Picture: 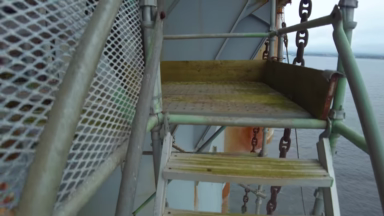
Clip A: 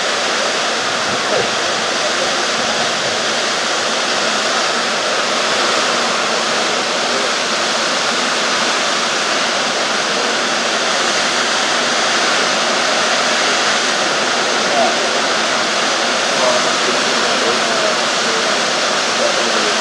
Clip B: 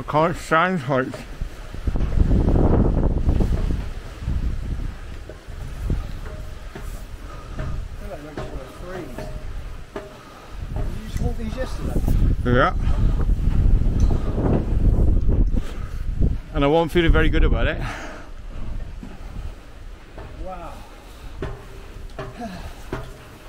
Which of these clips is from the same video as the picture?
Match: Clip B